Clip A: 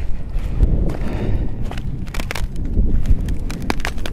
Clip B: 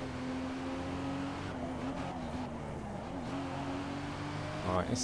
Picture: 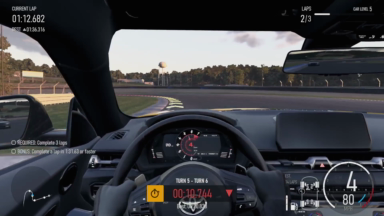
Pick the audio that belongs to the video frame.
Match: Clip B